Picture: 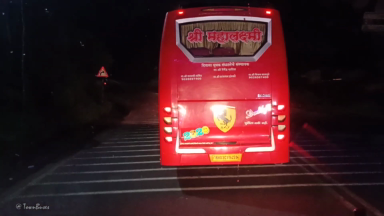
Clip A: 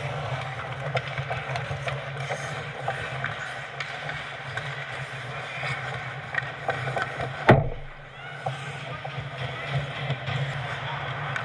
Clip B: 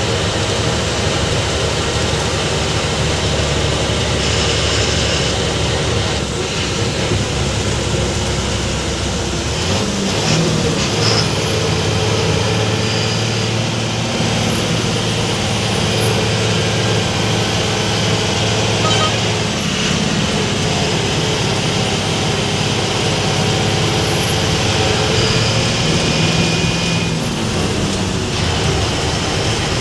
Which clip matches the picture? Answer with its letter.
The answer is B